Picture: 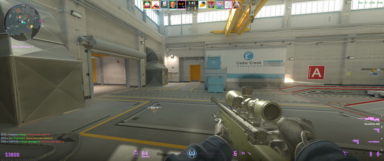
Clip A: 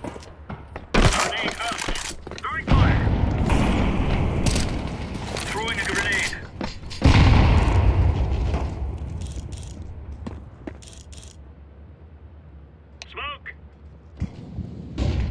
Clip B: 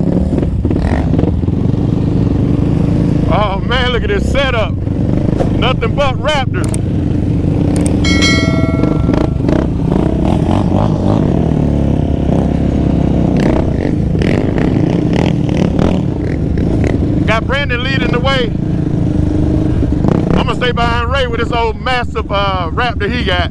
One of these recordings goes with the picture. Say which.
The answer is A